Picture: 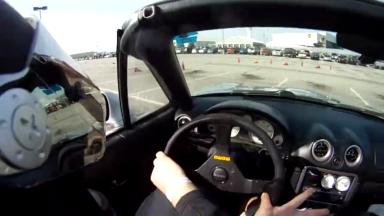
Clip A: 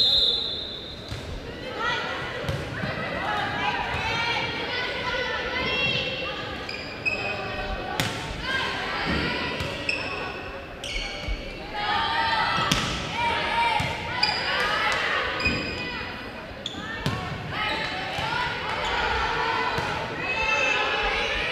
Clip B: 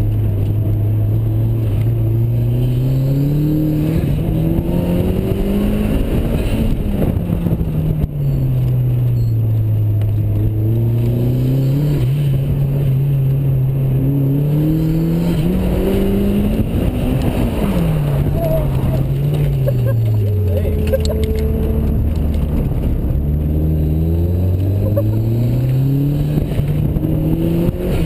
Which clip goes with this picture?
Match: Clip B